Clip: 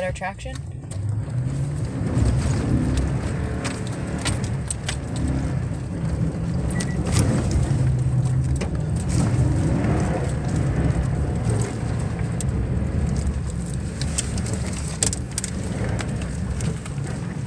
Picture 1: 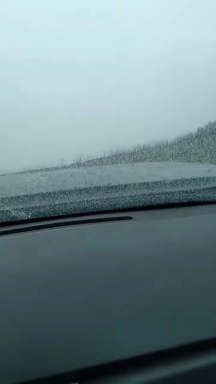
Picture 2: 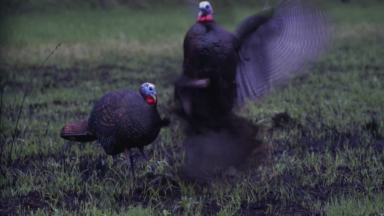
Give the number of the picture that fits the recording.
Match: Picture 1